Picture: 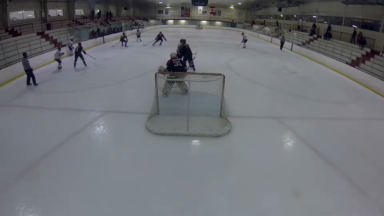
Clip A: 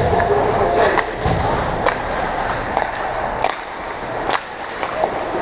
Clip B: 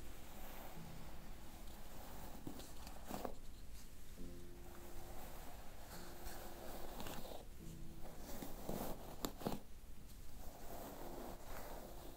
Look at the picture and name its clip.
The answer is A